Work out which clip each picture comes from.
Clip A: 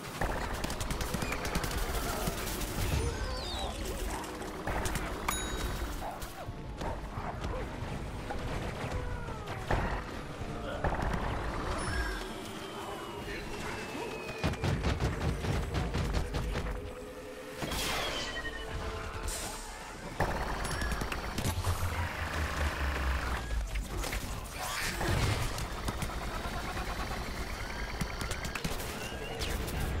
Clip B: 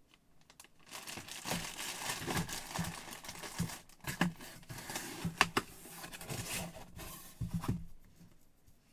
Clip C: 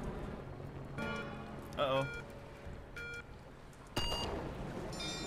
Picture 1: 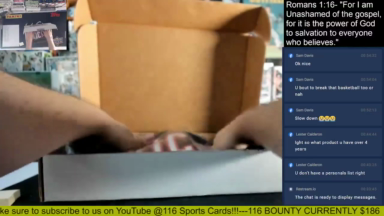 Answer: B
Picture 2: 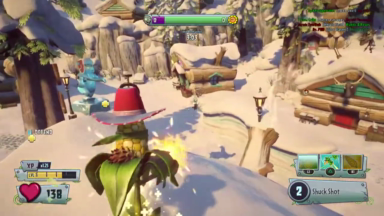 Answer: A